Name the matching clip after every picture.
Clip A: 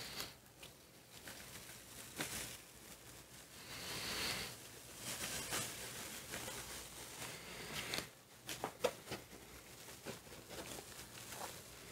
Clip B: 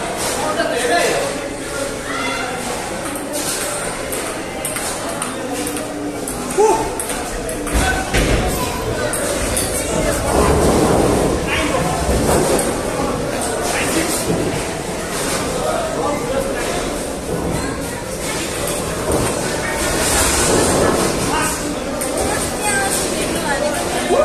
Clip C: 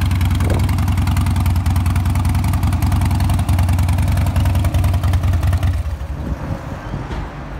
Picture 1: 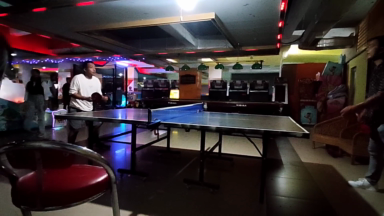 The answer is B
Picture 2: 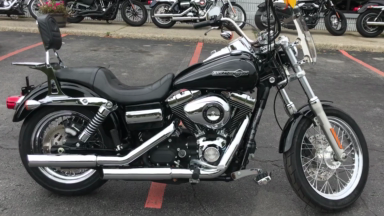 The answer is C